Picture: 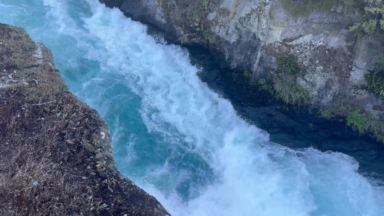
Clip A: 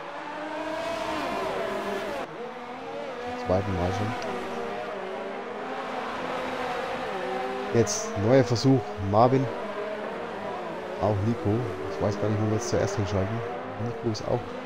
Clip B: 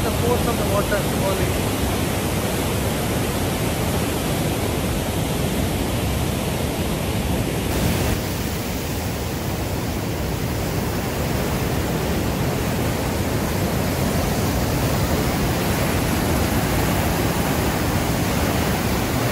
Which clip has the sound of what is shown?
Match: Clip B